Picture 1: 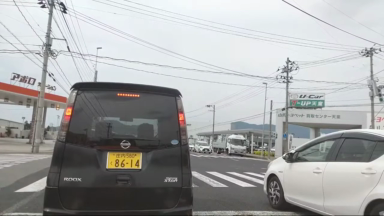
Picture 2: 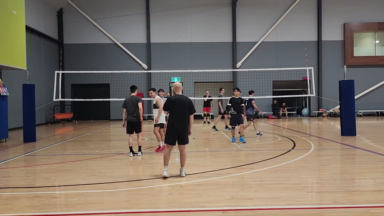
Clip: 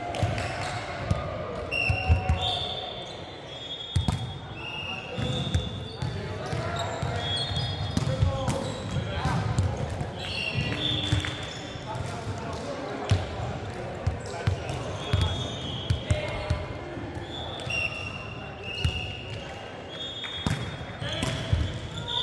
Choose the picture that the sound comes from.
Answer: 2